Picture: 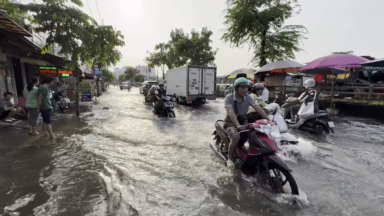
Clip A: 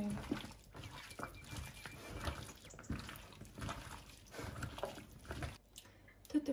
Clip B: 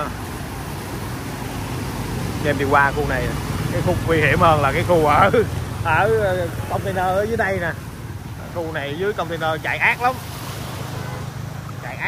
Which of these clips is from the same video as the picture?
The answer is B